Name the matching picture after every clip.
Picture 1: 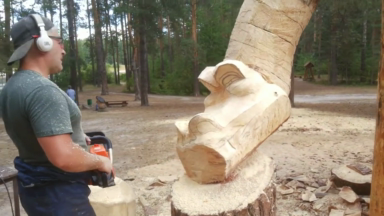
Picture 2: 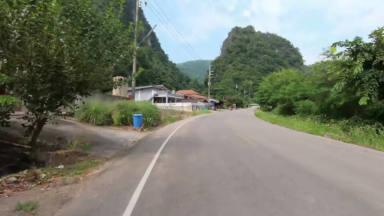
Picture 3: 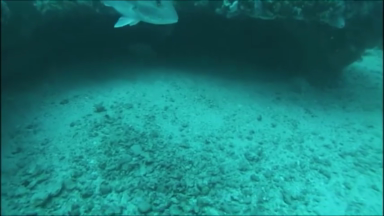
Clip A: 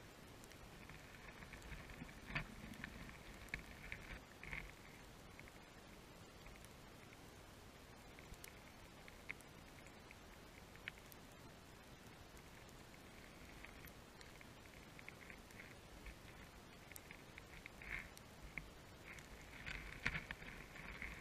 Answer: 3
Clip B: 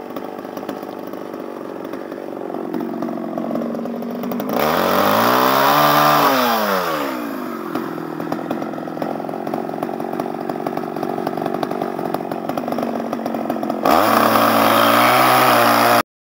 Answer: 1